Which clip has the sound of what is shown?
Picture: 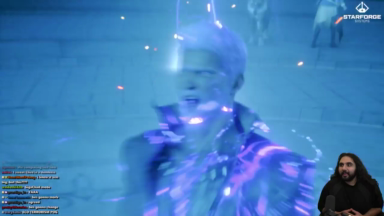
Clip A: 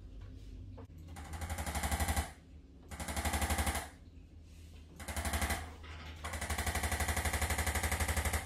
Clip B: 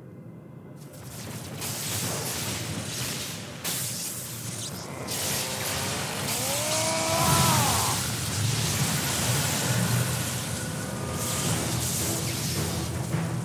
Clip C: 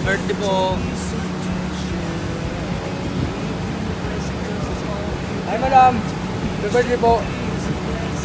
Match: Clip B